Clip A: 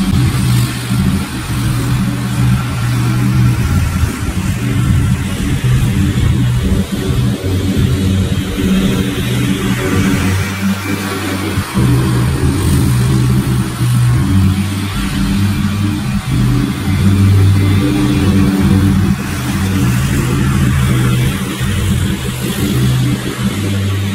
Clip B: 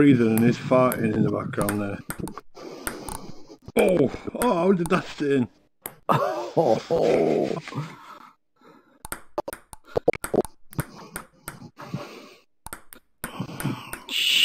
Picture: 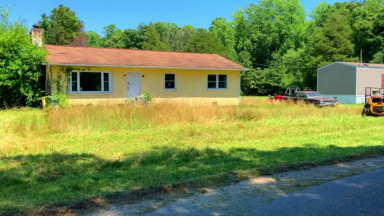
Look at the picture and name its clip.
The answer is A